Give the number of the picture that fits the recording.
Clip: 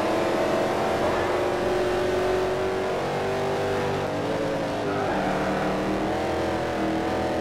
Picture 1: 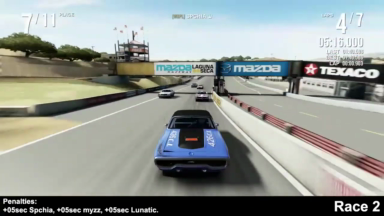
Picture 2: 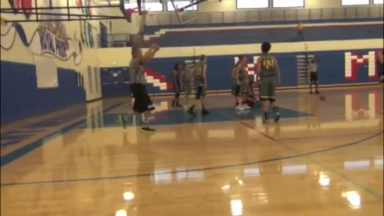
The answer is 1